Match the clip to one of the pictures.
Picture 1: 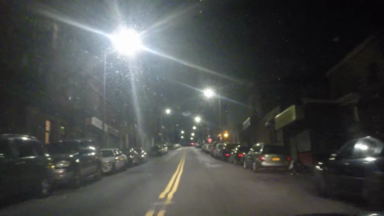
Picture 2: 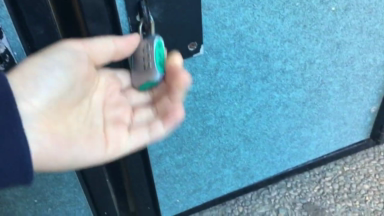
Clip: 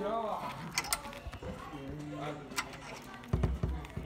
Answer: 2